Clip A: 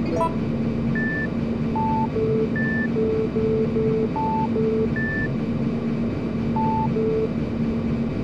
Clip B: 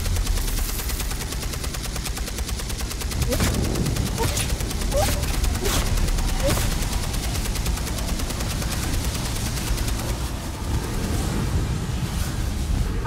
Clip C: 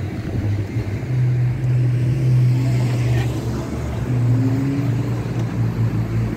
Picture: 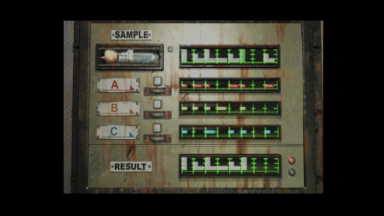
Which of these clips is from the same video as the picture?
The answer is A